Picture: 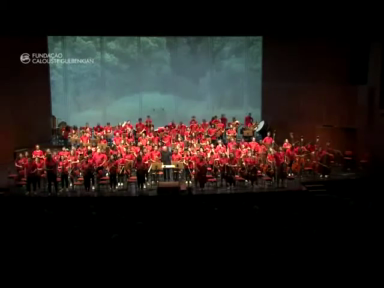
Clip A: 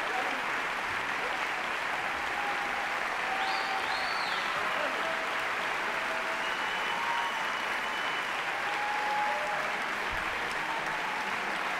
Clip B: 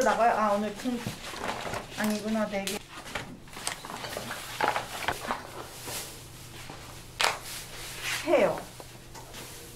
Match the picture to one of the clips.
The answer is A